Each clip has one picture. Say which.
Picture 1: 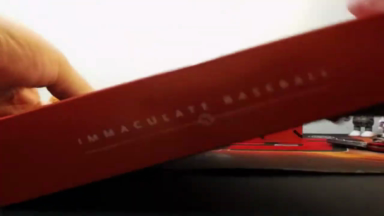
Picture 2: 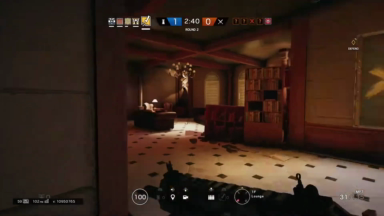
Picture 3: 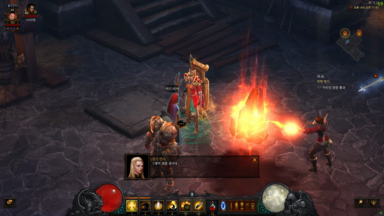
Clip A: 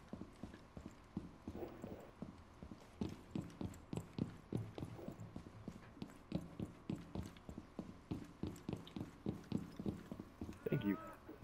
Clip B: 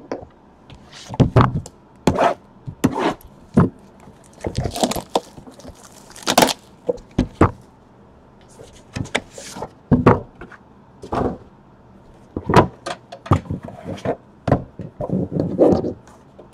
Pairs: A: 2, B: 1